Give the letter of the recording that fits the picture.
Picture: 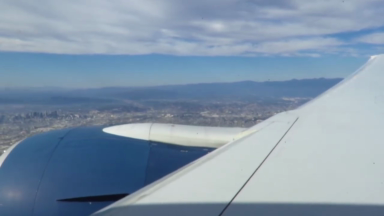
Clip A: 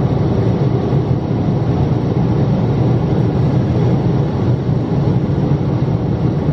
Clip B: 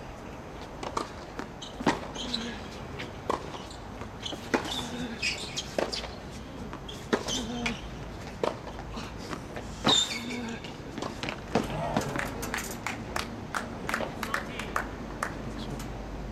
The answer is A